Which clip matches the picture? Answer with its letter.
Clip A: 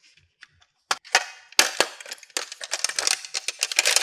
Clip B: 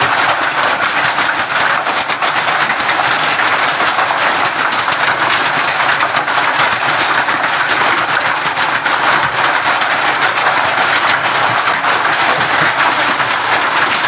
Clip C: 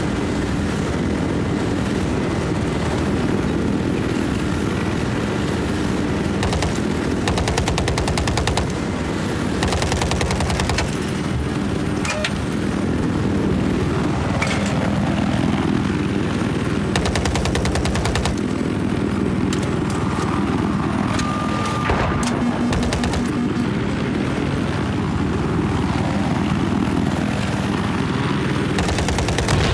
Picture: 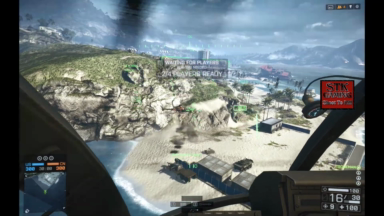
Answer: C